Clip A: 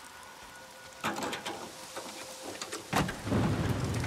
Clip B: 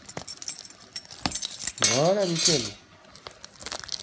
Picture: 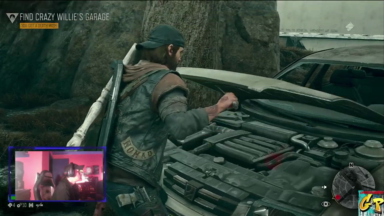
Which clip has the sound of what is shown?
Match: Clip A